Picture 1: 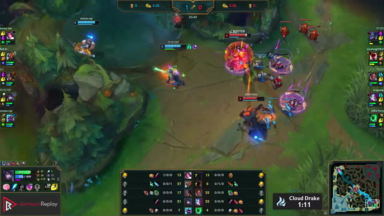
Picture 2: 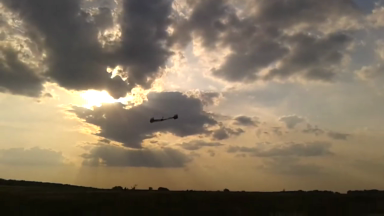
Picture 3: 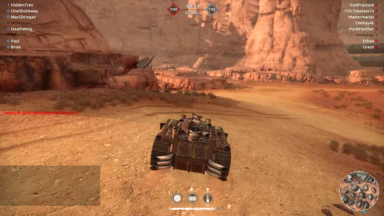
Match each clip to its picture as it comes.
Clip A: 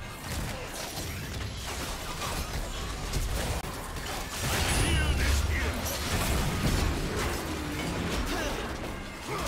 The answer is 1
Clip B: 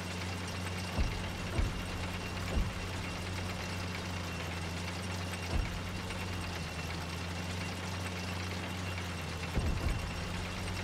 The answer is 3